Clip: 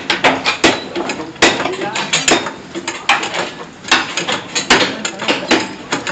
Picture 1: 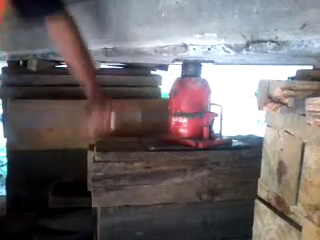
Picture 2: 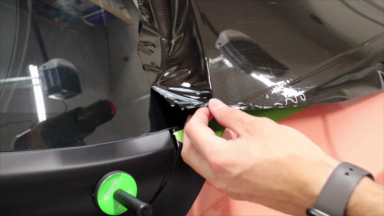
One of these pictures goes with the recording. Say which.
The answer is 1